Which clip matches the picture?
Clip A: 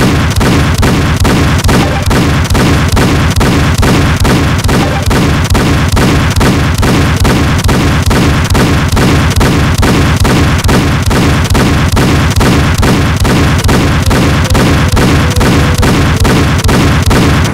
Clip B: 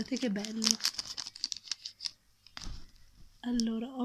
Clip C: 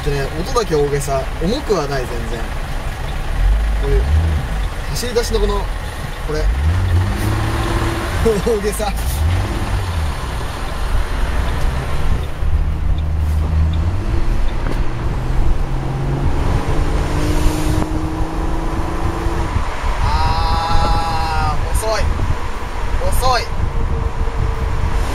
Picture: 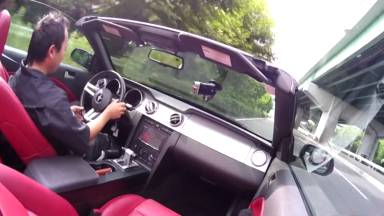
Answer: C